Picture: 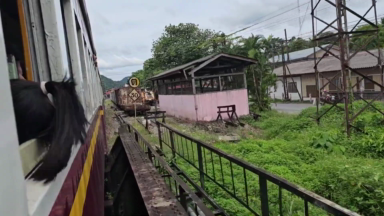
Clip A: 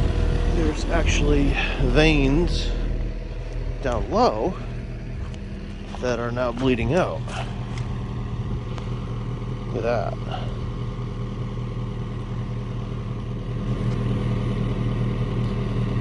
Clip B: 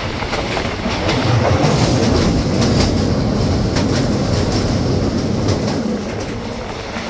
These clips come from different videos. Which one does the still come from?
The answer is B